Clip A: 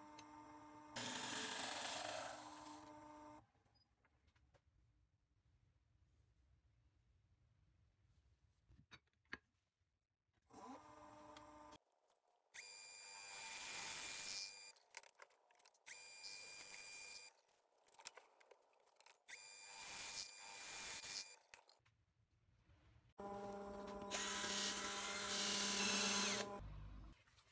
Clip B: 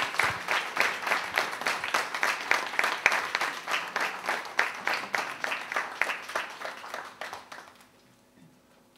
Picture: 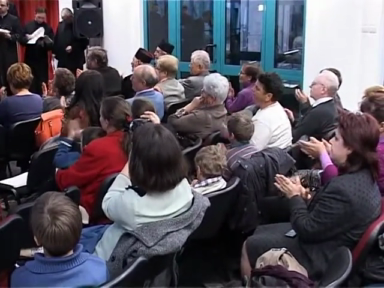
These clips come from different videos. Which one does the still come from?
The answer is B